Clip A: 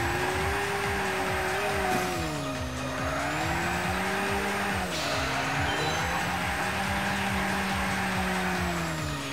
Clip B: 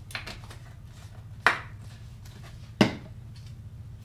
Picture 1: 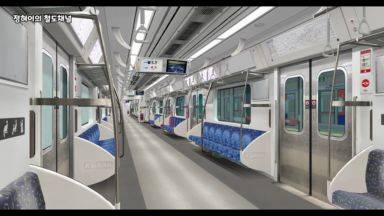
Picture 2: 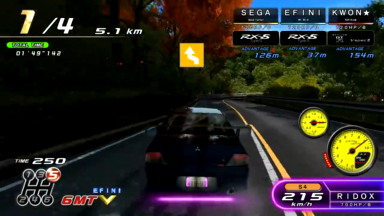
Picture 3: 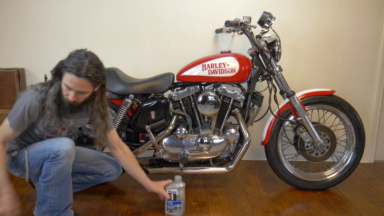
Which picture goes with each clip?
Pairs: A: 2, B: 3